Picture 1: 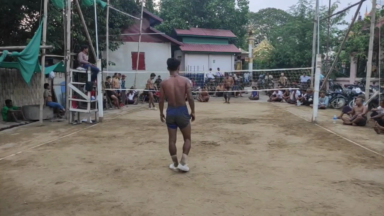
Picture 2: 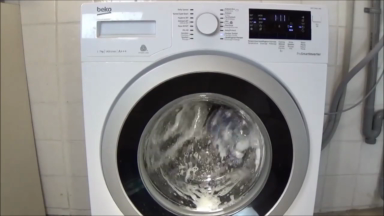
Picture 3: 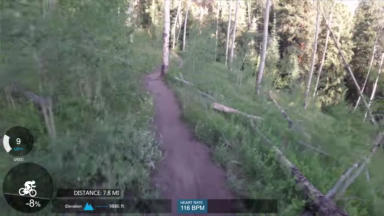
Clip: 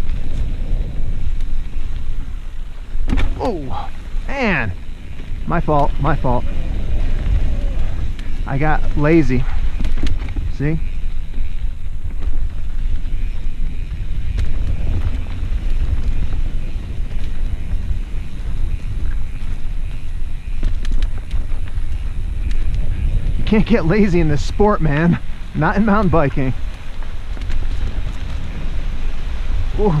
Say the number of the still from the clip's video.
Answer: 3